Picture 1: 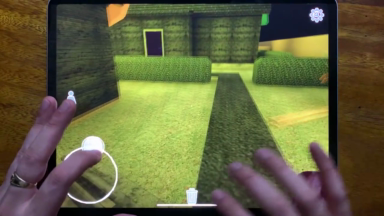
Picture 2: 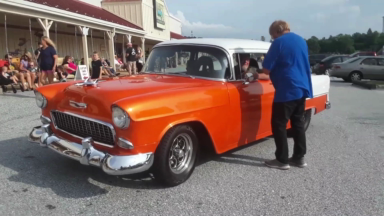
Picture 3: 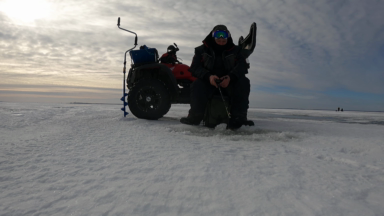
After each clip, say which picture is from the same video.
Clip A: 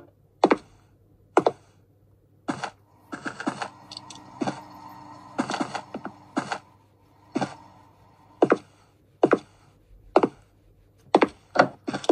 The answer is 1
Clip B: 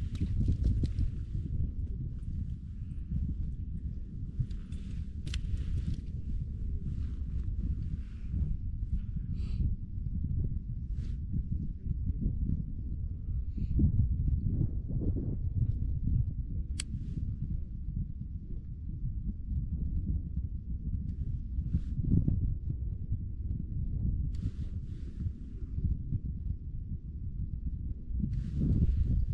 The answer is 3